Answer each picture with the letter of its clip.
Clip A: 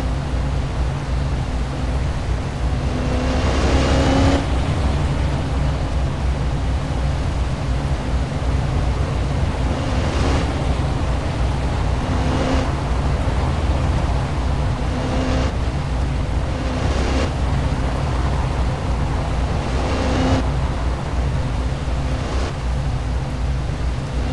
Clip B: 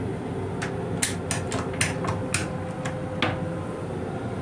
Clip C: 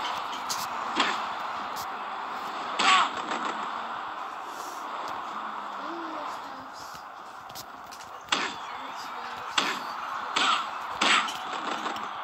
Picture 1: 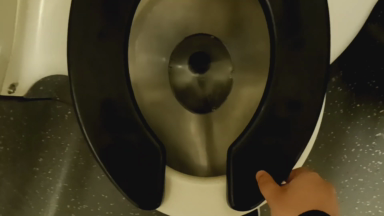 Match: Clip B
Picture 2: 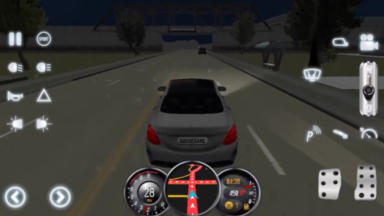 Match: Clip A